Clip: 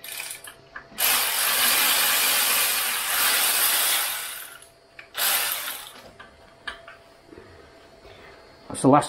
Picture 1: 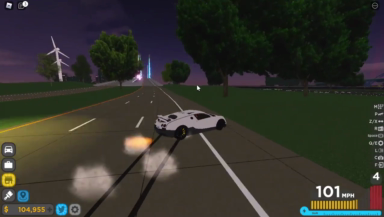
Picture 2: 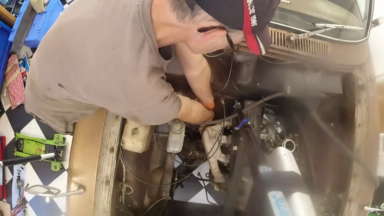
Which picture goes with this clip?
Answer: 2